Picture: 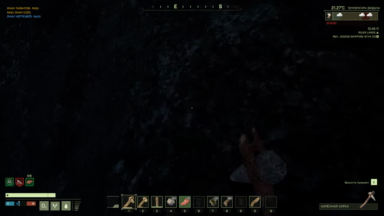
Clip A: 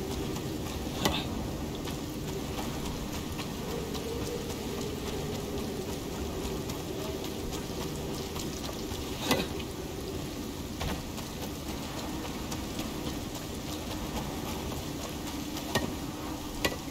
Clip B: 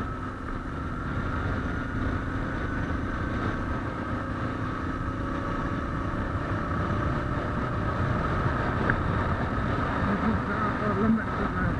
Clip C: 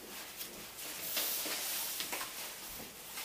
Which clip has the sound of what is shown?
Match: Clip A